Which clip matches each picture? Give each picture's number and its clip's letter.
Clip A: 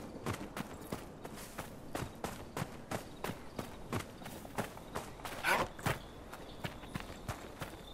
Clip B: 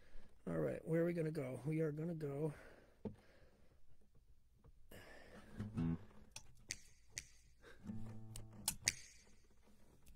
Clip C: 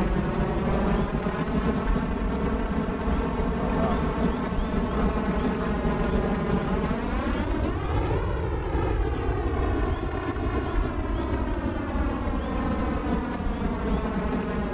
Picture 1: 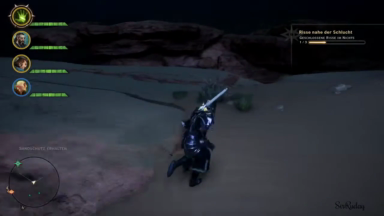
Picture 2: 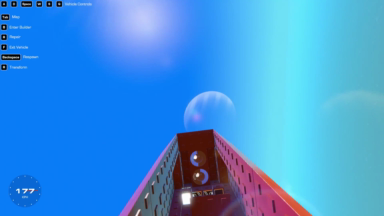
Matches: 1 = A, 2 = C